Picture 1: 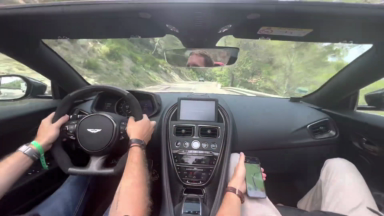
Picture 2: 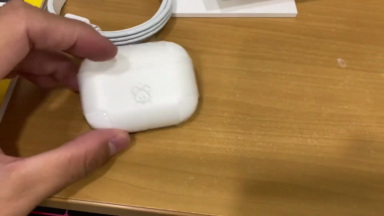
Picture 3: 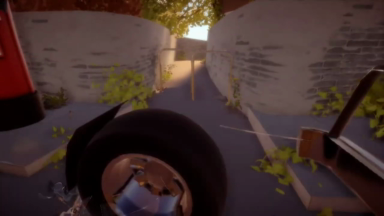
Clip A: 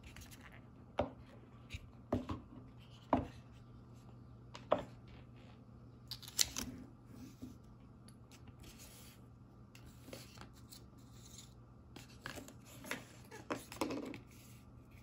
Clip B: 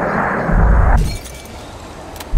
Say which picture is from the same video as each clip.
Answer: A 2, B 3